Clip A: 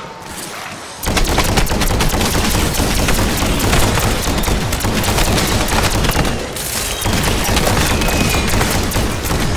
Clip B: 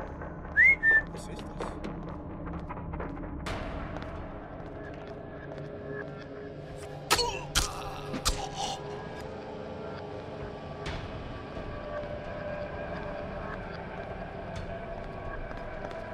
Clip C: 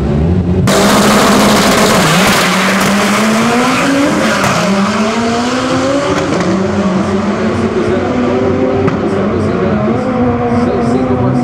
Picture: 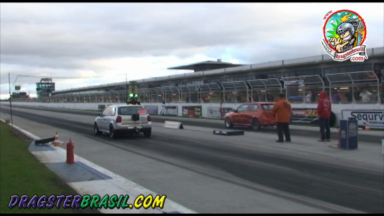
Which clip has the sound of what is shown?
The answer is C